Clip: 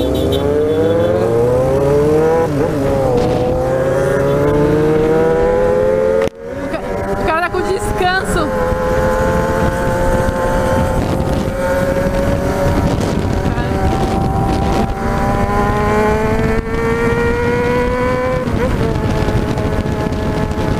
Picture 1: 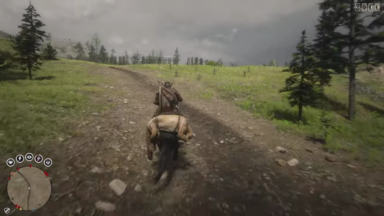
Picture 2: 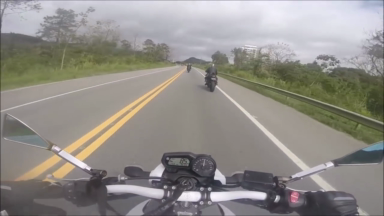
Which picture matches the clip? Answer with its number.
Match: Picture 2